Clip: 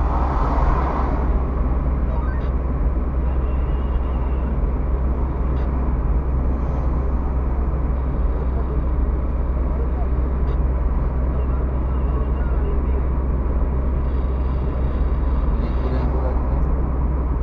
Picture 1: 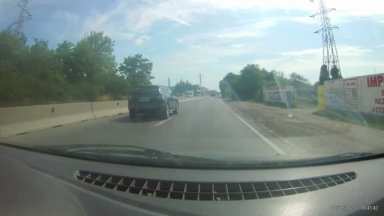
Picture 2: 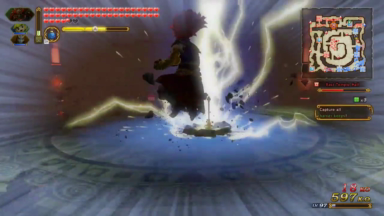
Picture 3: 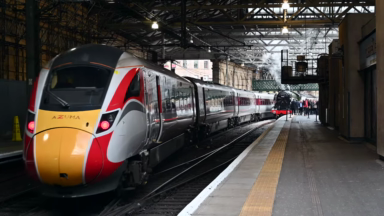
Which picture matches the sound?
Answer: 1